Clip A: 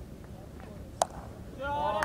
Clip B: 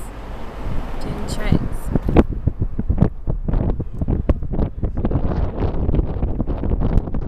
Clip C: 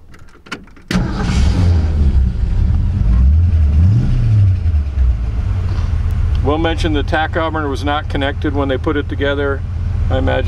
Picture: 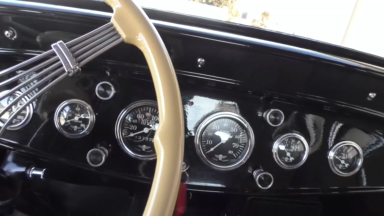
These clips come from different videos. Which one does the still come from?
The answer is C